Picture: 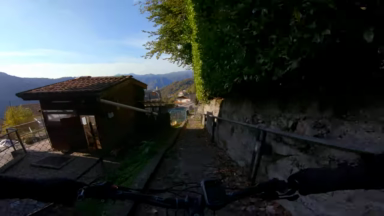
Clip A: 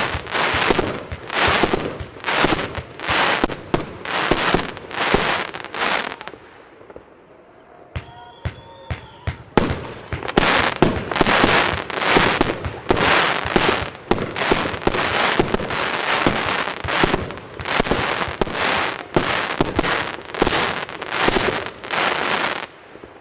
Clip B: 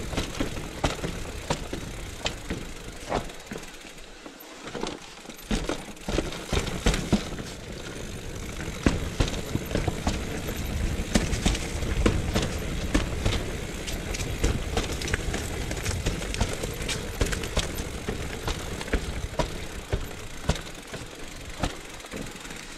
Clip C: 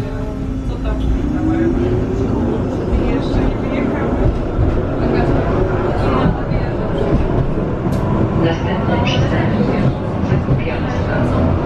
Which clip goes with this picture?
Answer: B